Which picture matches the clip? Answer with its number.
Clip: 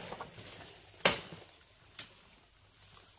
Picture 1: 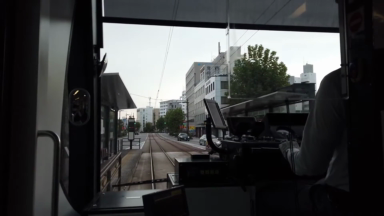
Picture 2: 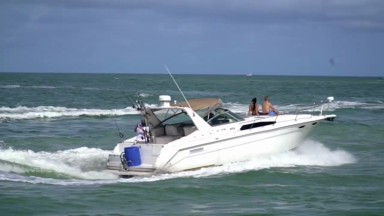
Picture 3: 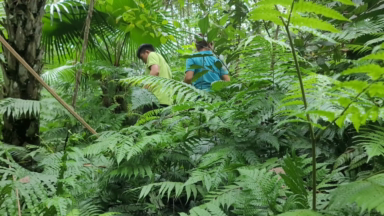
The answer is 3